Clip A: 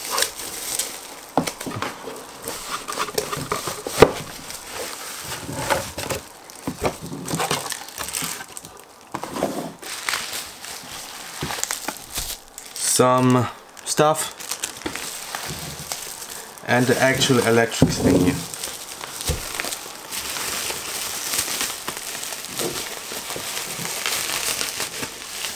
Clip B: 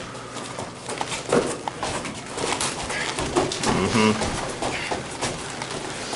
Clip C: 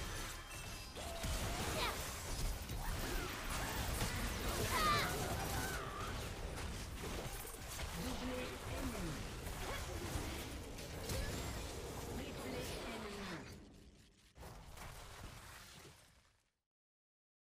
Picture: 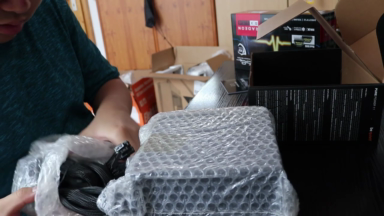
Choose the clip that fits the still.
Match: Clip A